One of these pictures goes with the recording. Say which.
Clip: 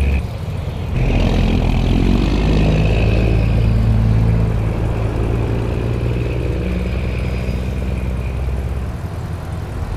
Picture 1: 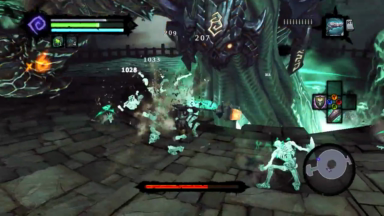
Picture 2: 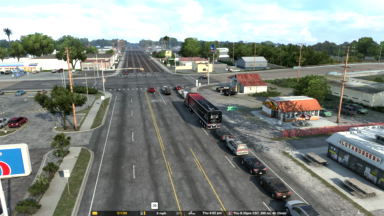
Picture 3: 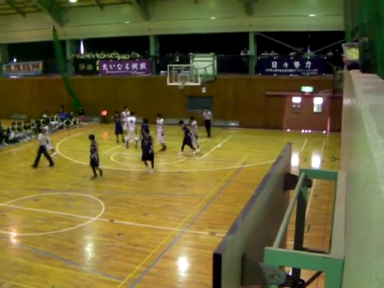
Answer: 2